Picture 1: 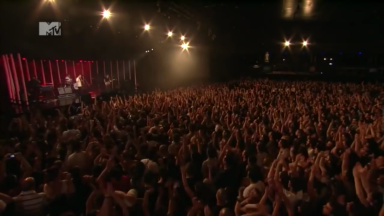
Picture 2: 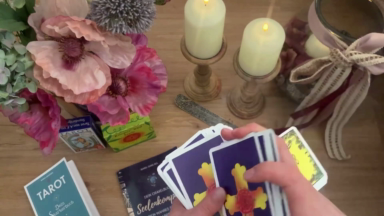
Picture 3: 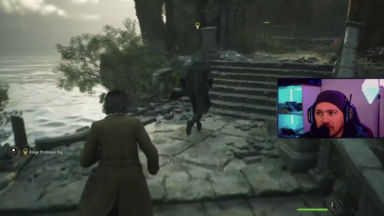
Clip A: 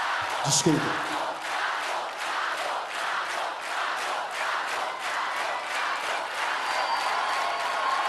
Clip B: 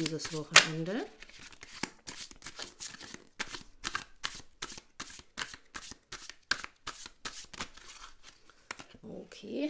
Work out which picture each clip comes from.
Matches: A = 1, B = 2